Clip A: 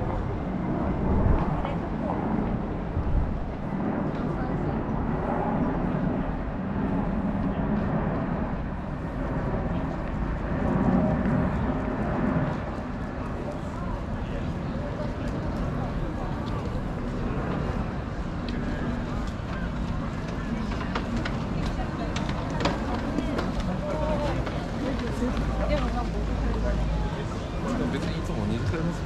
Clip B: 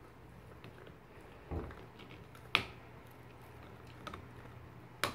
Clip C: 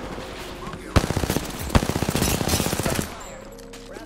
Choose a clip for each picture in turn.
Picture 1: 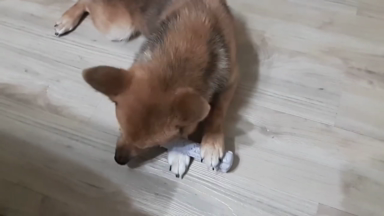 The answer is B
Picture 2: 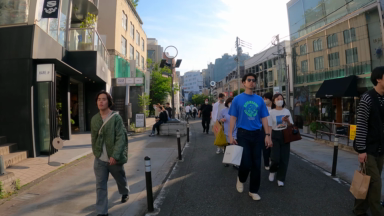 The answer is A